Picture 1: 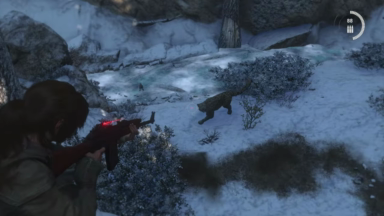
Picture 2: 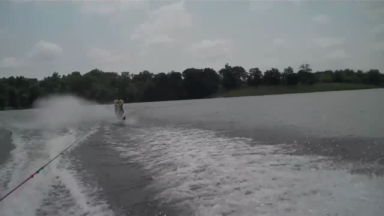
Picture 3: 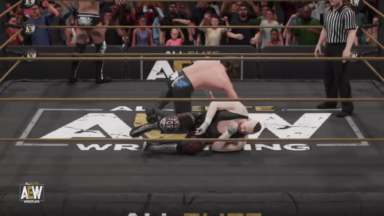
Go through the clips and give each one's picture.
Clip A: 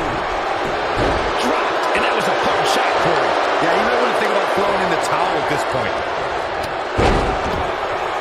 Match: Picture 3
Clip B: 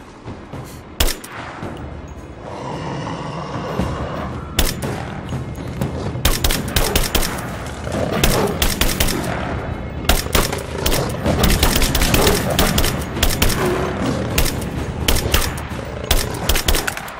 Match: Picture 1